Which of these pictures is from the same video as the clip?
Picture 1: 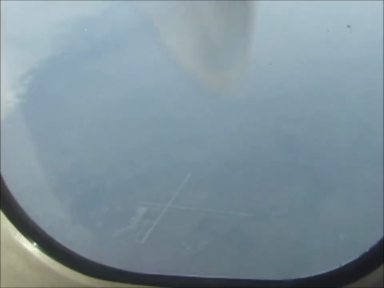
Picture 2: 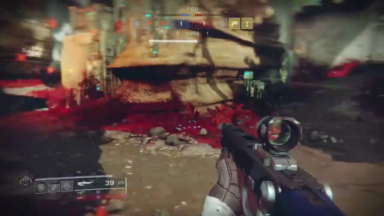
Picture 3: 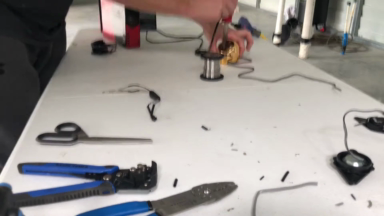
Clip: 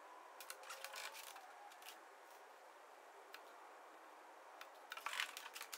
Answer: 3